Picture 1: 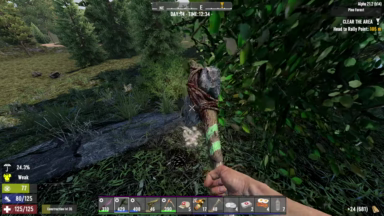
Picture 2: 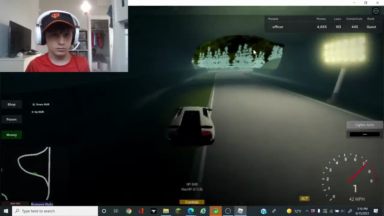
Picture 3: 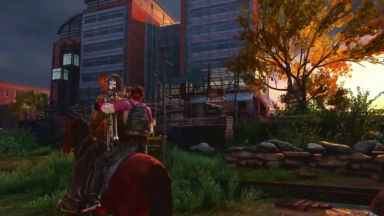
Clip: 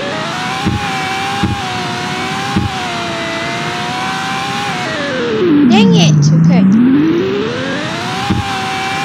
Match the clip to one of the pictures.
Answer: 2